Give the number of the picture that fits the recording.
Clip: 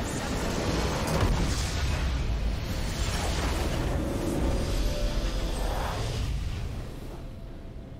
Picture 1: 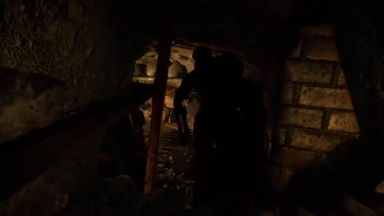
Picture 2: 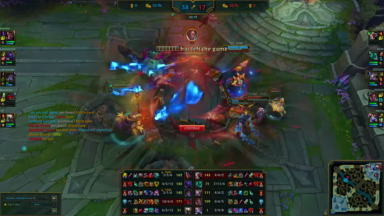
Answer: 2